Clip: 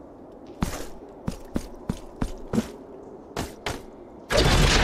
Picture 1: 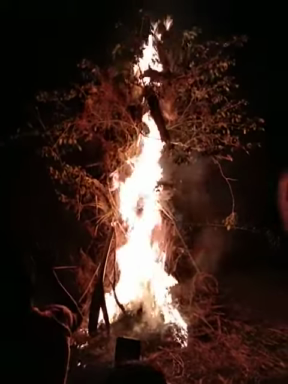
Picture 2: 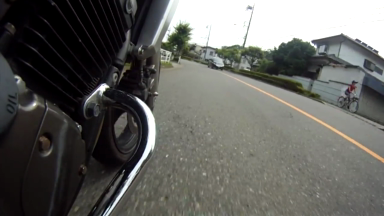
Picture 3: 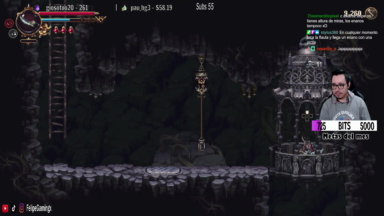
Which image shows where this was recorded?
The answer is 3